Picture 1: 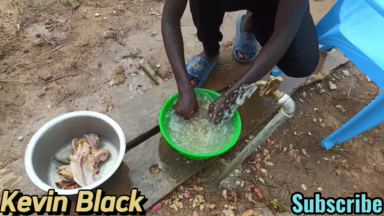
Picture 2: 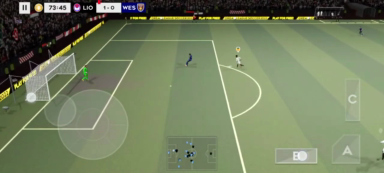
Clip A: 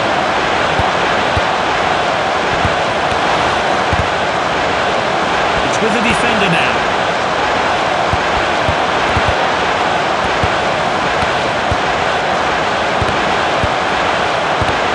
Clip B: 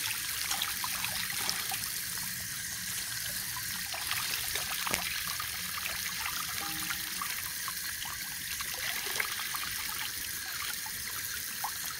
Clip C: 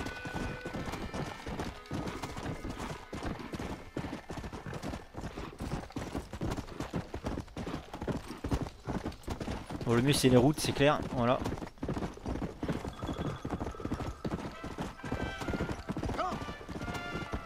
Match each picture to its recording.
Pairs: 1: B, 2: A